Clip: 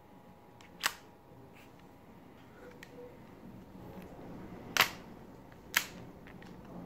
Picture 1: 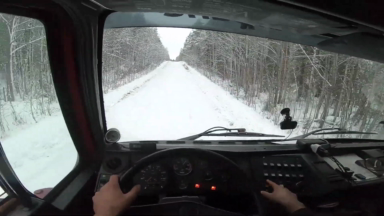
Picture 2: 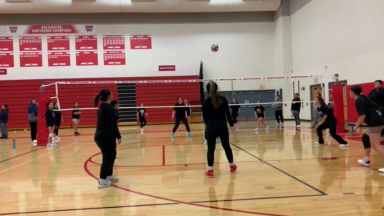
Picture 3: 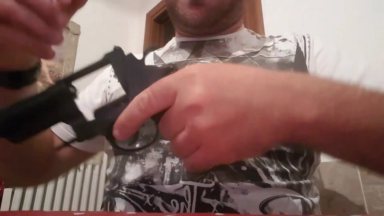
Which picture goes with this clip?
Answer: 3